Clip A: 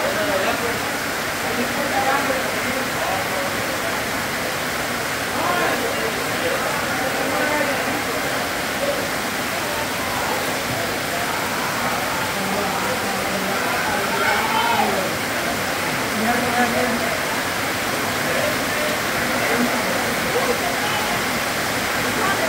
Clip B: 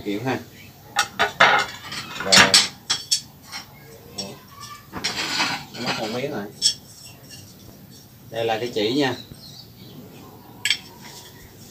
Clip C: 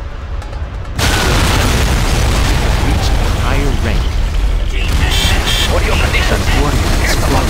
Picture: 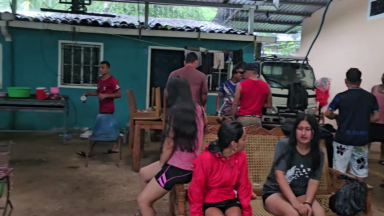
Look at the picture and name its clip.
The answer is A